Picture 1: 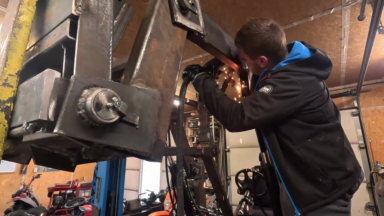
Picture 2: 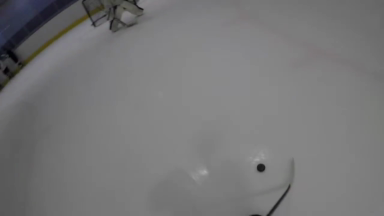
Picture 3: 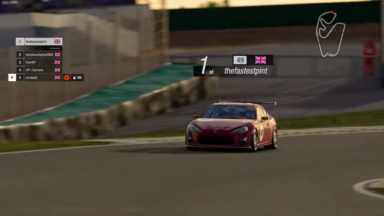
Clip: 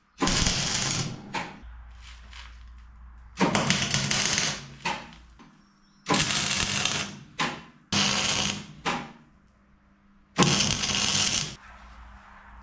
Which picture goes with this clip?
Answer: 1